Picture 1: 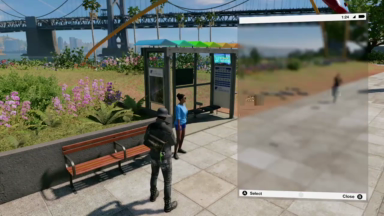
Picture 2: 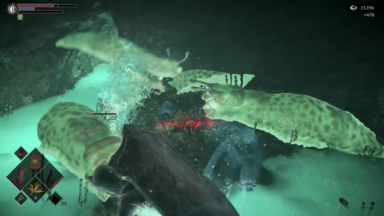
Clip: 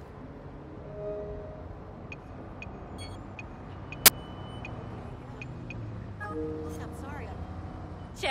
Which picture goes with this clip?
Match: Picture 1